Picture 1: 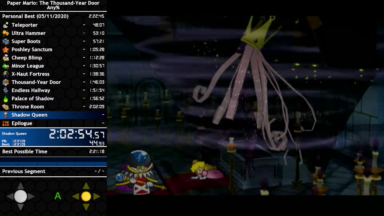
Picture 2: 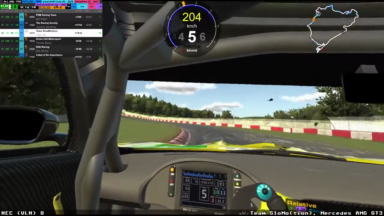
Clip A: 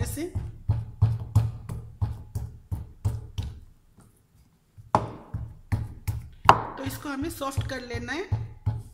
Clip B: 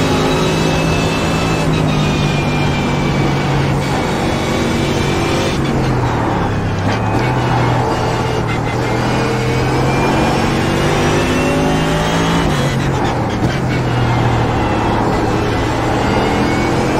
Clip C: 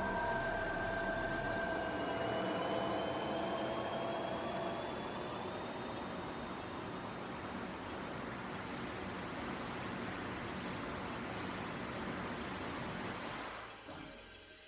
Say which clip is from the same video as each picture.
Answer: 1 C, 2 B